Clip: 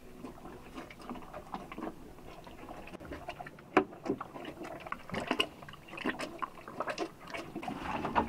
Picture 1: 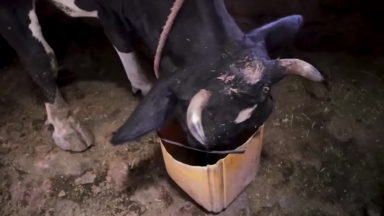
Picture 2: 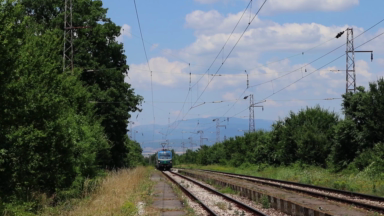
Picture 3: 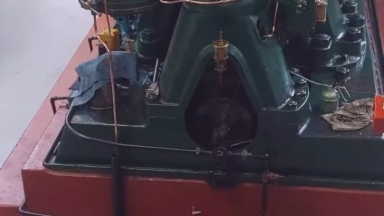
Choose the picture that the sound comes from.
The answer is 1